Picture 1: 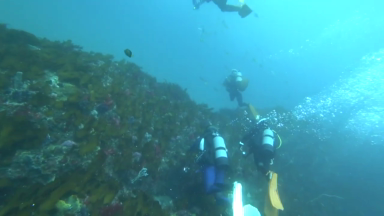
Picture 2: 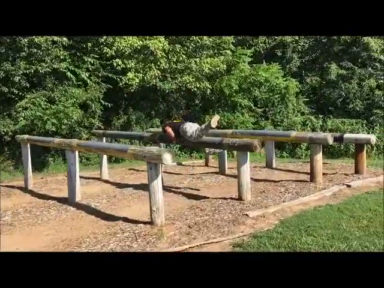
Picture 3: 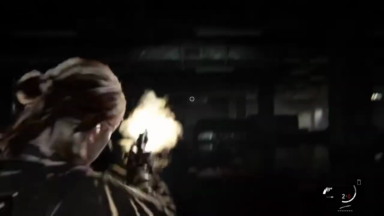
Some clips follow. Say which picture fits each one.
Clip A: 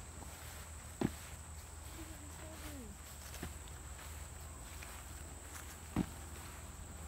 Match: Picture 2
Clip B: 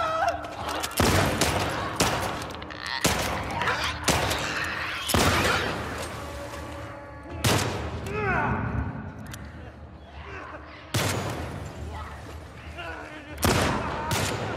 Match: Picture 3